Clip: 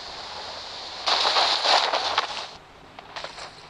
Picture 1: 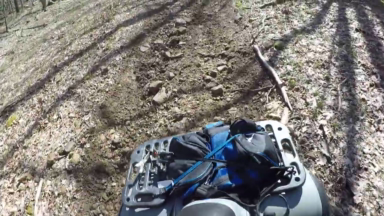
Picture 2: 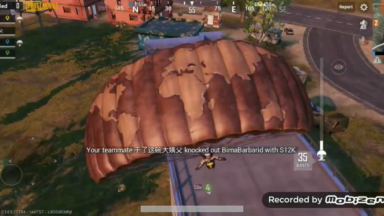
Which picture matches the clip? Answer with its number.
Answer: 2